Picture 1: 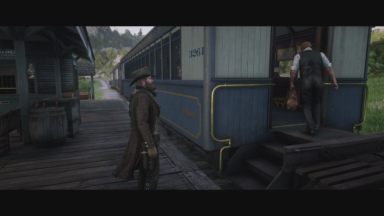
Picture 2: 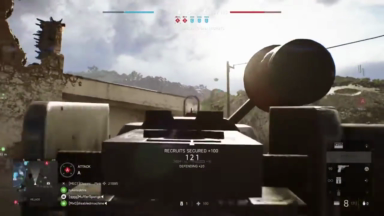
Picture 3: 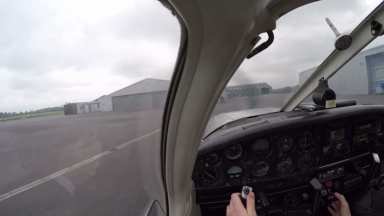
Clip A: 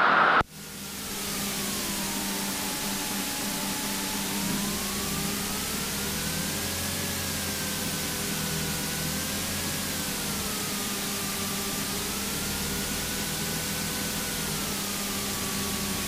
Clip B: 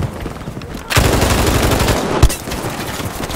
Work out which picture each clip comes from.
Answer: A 3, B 2